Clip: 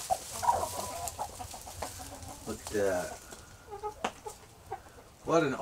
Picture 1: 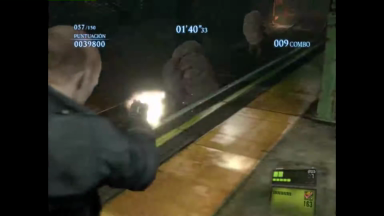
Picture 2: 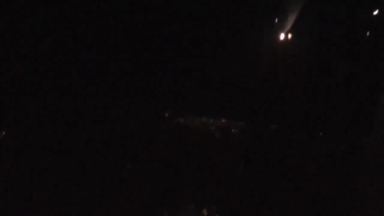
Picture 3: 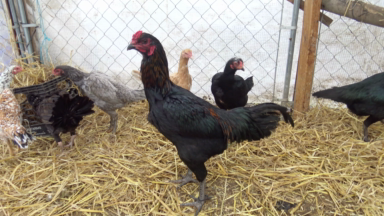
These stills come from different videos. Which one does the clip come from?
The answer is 3